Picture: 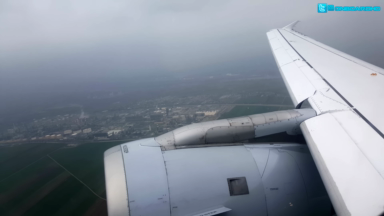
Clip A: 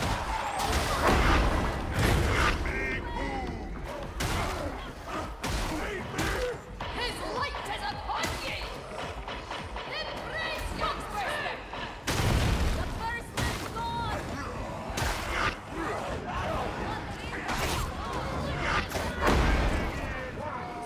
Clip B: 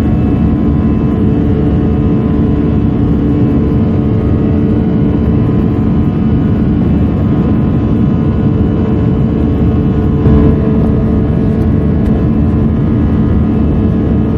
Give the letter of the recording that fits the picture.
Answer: B